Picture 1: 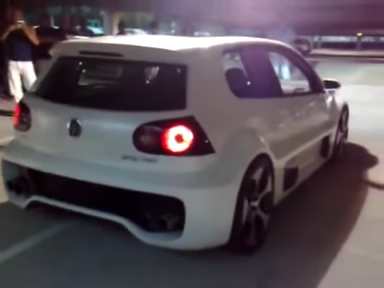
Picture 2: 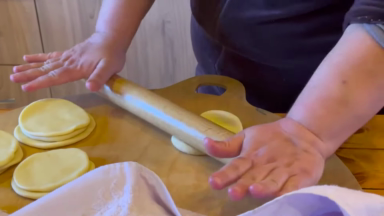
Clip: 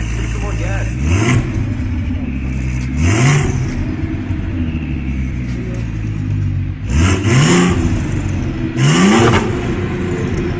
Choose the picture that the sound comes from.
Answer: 1